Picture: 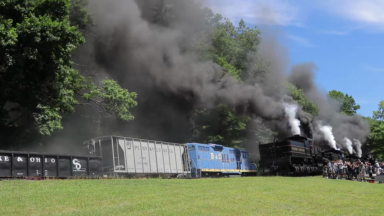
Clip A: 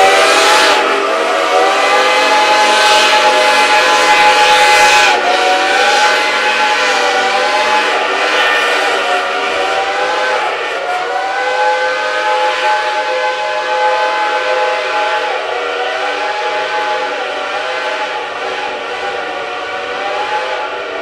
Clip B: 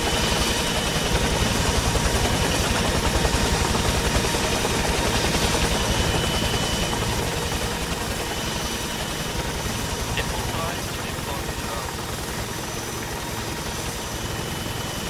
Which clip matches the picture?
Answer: A